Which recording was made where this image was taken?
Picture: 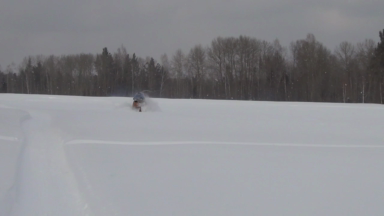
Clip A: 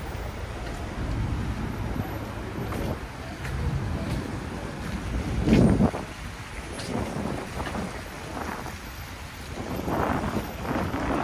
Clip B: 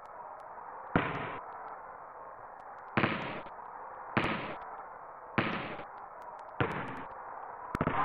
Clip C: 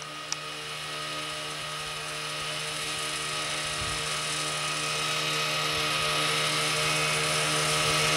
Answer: C